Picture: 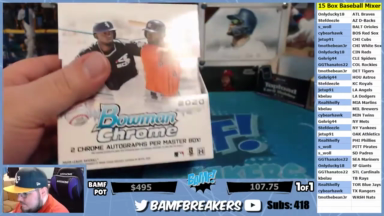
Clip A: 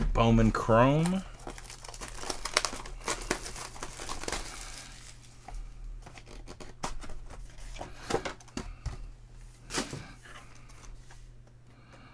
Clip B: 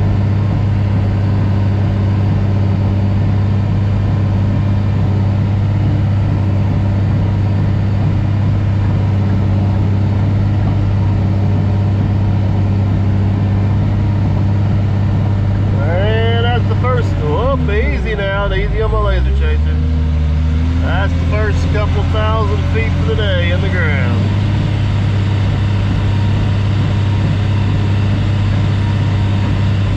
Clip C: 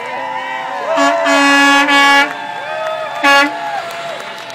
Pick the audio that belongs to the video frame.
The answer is A